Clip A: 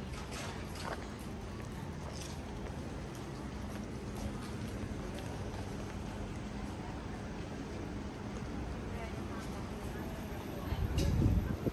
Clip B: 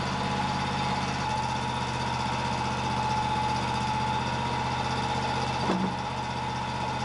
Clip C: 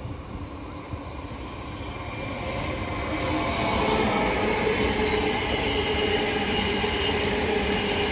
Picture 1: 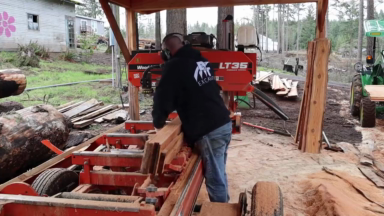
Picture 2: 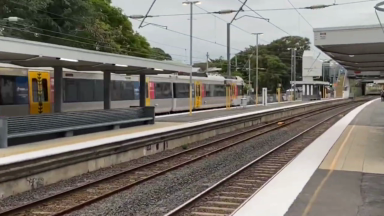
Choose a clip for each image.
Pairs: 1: B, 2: C